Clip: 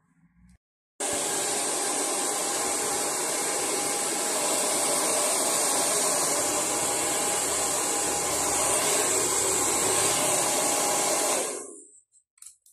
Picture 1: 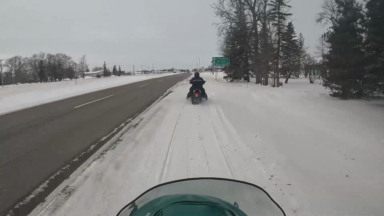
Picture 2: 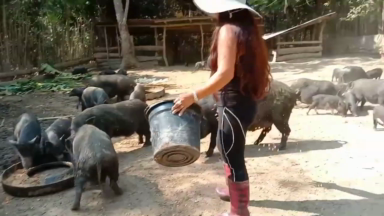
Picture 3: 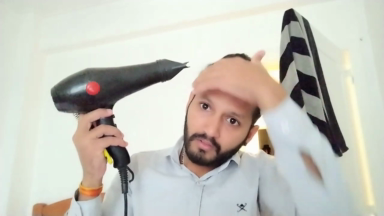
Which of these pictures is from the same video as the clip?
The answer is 3